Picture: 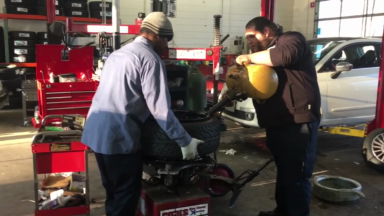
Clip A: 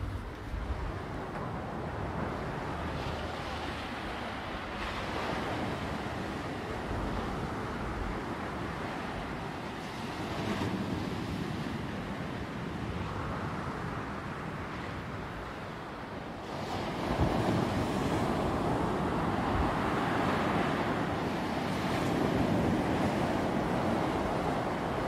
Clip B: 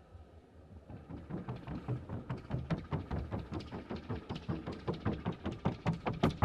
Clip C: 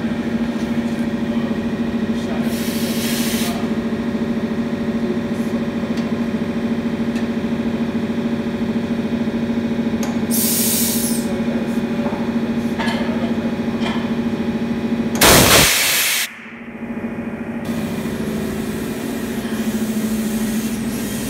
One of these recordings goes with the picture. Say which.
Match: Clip C